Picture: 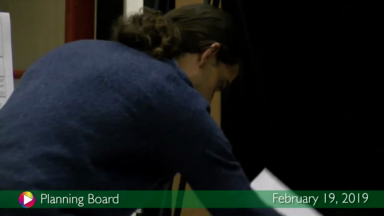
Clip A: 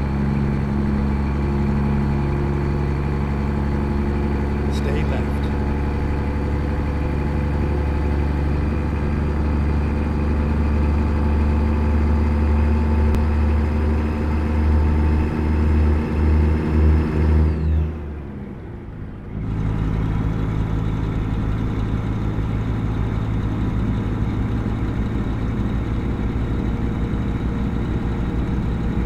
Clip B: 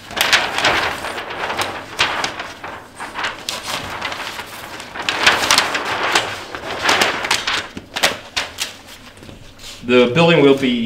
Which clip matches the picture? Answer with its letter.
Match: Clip B